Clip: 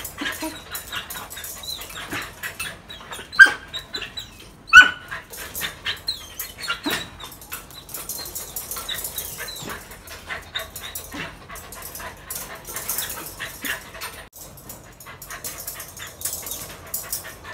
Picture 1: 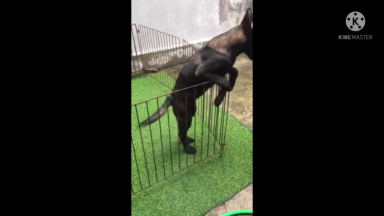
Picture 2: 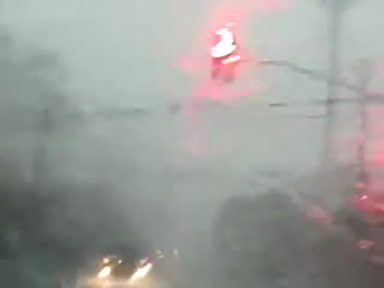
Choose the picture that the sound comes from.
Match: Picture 1